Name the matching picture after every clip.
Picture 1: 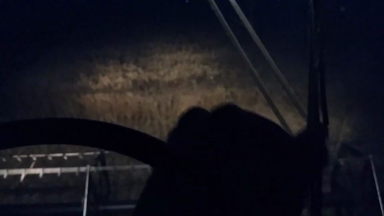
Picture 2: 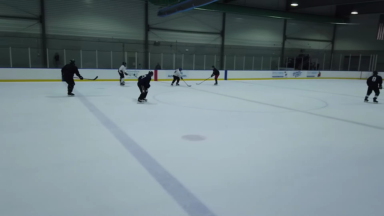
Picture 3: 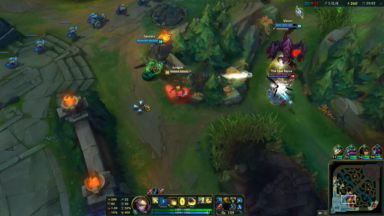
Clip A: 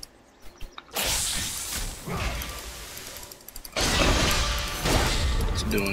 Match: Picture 3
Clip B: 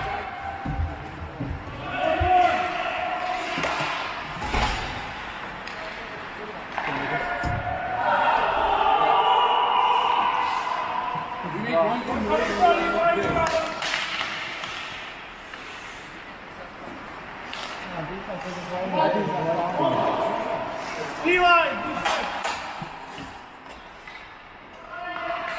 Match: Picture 2